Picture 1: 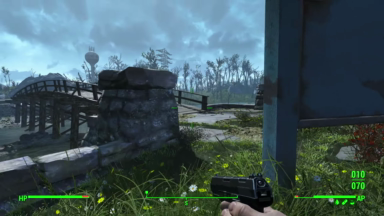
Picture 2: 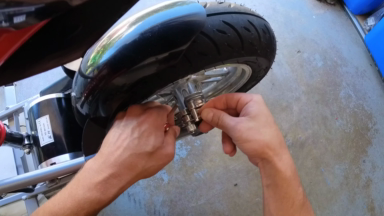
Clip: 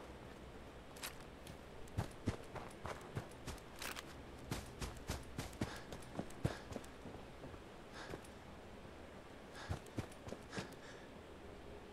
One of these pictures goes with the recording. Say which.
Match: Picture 1